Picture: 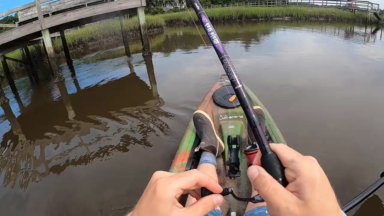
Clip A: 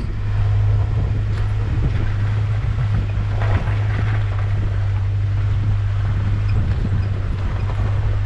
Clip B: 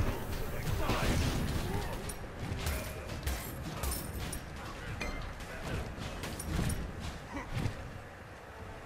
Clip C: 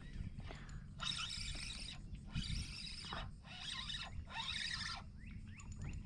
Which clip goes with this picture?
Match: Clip C